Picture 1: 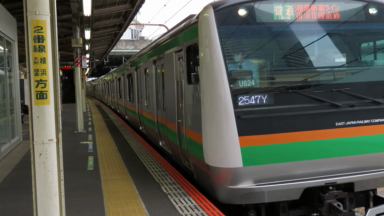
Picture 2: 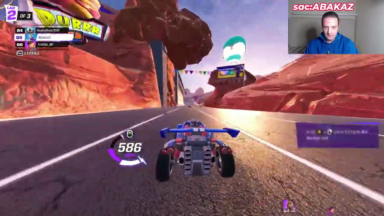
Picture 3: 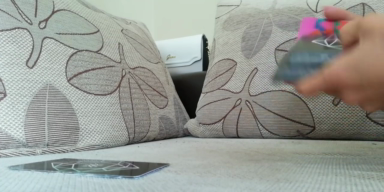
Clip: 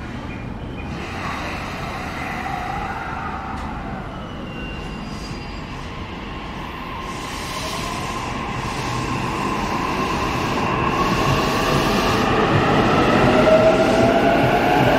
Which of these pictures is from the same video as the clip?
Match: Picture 1